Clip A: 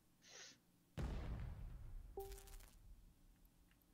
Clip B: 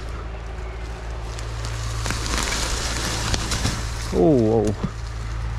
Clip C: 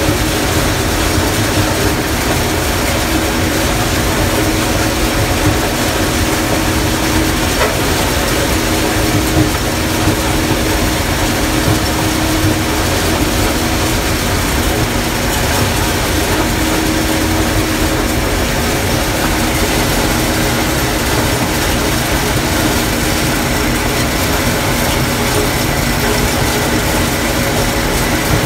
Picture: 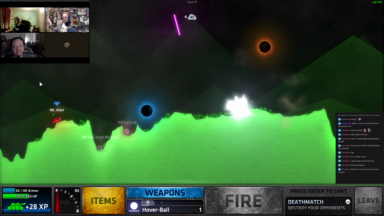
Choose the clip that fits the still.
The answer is A